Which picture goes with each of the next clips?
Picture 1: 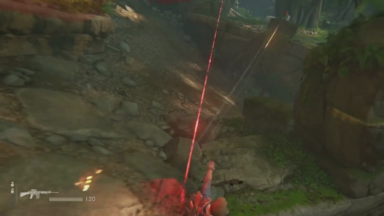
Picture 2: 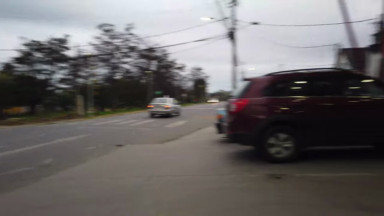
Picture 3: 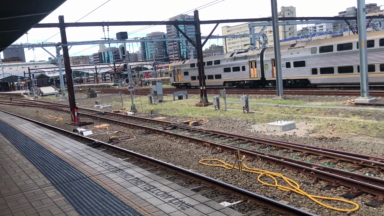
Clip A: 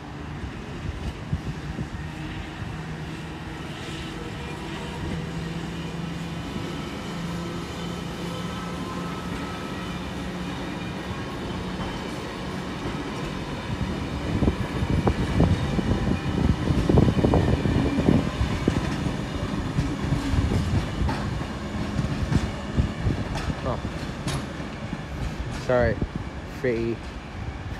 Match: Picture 3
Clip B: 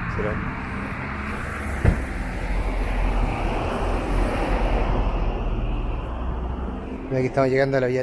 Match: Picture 2